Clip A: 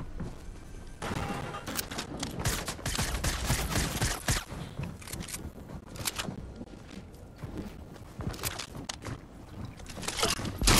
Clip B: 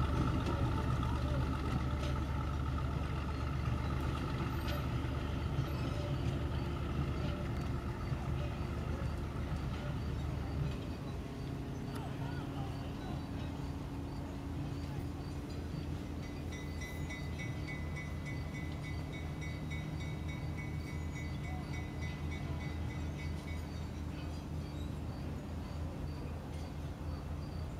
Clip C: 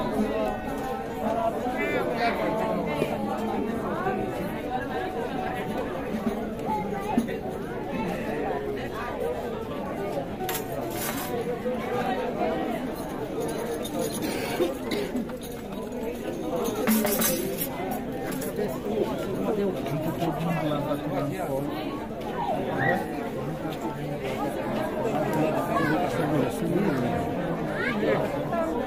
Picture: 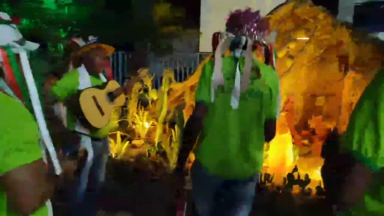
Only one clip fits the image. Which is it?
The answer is C